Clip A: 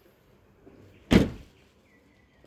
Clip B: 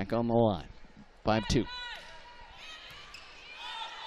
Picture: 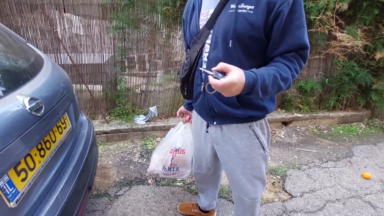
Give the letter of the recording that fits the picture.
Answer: A